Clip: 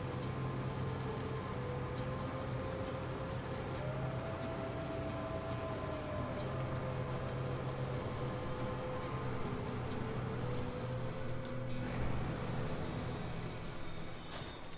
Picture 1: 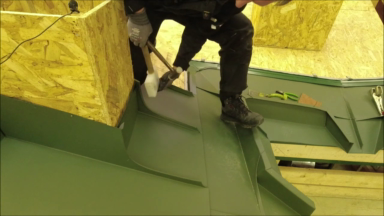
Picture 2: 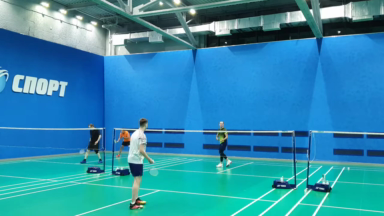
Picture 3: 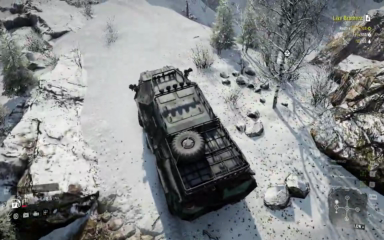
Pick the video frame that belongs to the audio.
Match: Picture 3